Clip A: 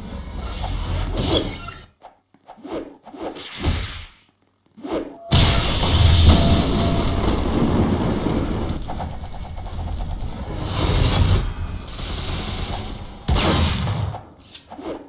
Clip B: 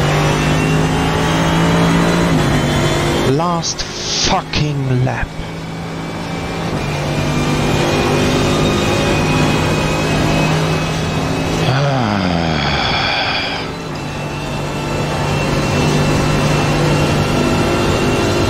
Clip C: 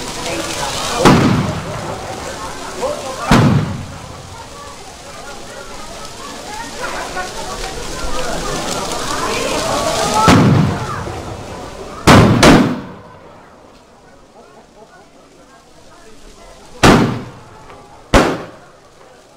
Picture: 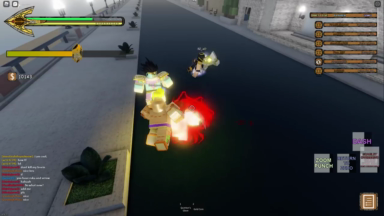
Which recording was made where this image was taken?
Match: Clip A